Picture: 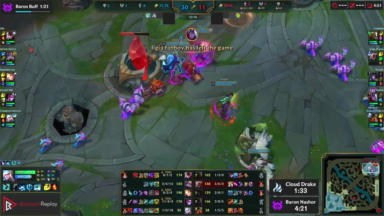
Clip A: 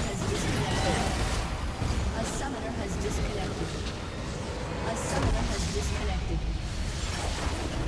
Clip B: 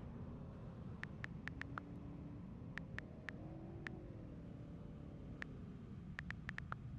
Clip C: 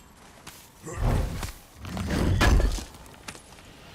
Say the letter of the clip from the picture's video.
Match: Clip A